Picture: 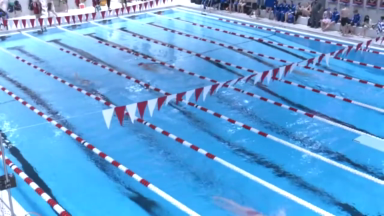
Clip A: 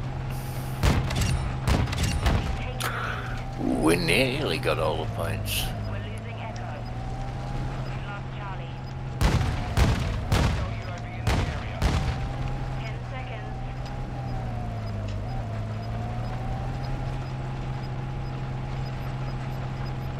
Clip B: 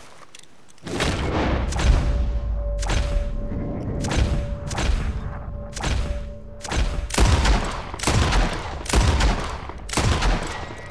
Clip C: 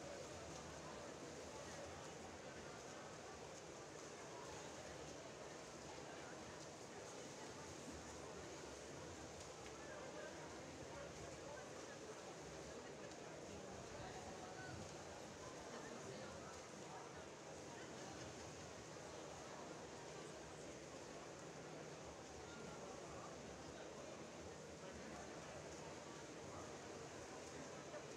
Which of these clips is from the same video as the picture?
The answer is C